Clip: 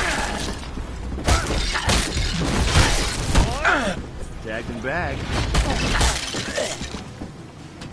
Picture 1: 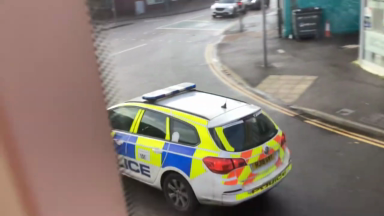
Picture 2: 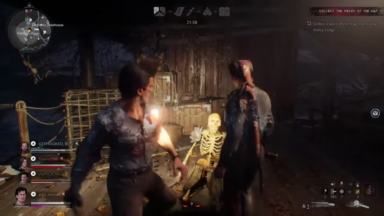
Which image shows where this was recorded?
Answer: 2